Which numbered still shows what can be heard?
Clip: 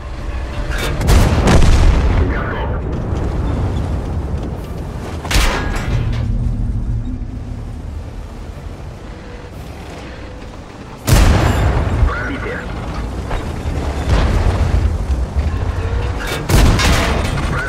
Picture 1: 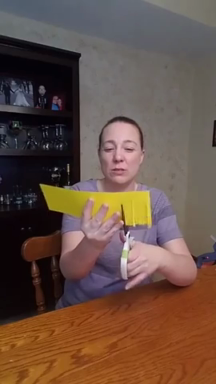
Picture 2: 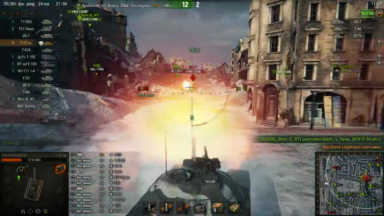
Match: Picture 2